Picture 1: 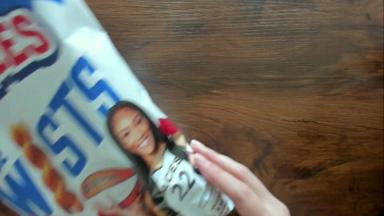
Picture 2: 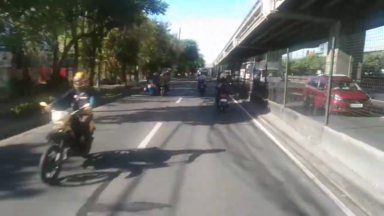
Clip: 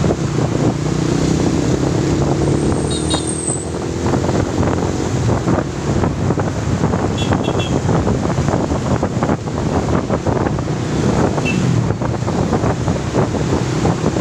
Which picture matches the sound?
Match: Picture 2